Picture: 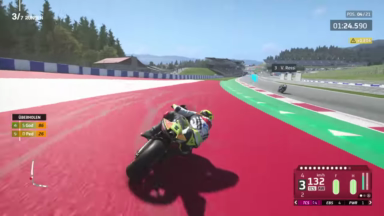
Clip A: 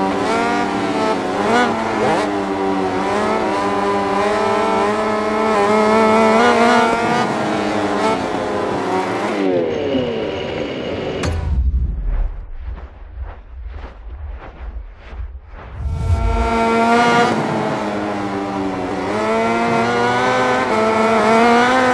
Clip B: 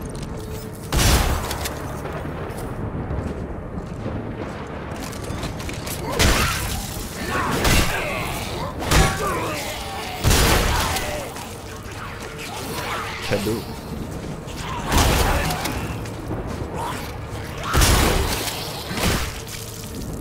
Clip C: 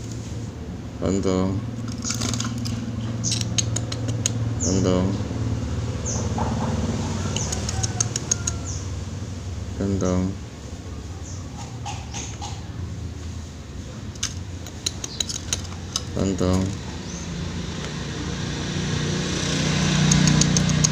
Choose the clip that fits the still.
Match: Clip A